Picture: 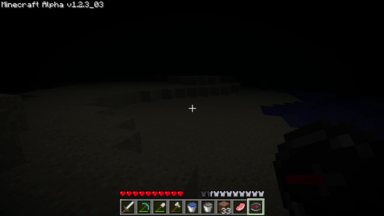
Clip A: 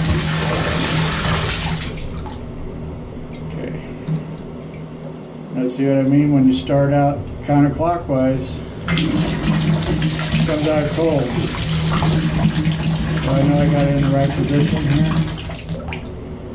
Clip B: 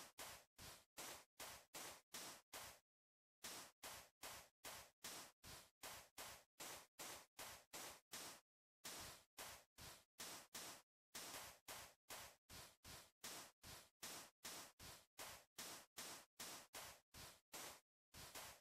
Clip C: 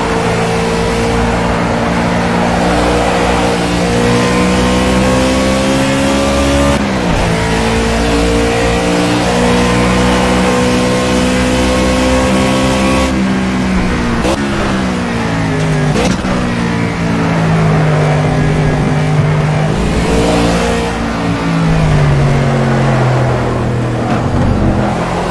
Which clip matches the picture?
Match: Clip B